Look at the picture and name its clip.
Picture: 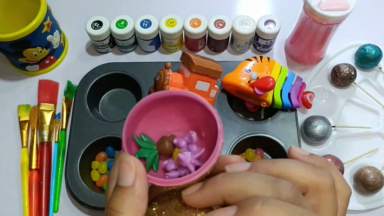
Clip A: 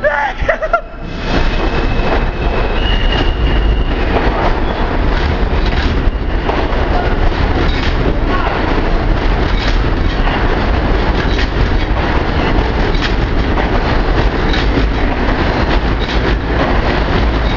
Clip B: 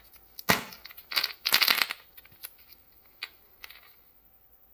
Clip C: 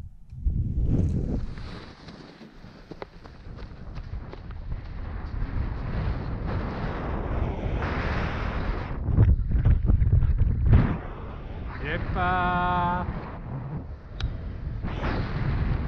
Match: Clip B